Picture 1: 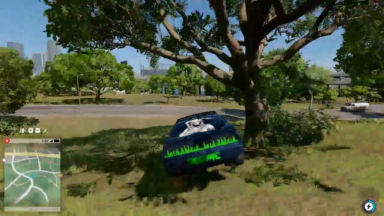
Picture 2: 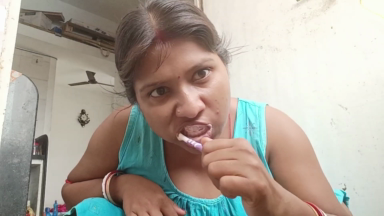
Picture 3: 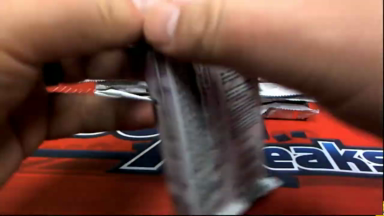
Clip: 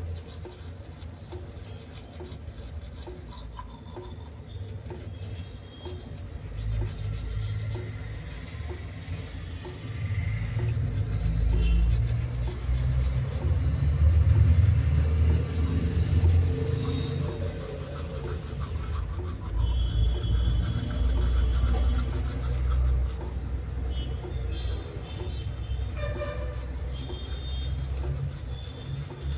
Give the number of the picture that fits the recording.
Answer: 2